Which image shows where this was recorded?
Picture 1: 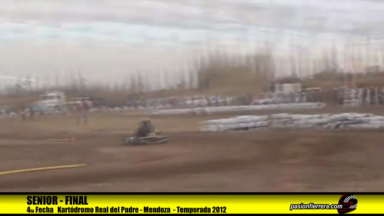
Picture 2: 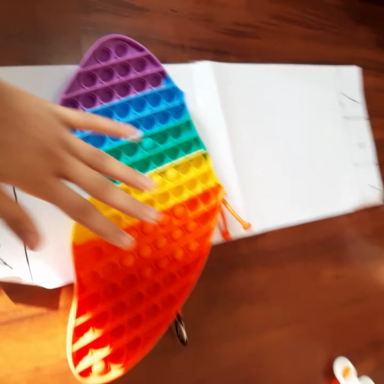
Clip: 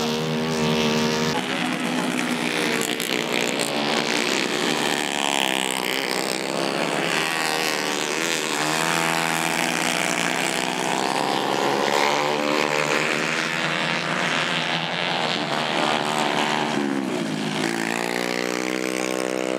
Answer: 1